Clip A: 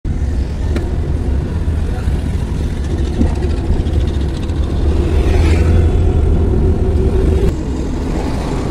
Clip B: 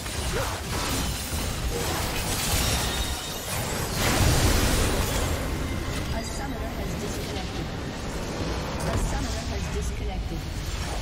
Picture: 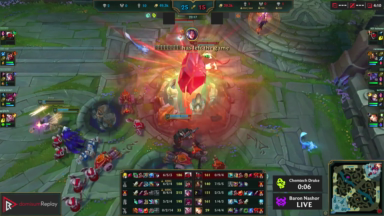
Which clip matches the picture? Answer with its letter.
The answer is B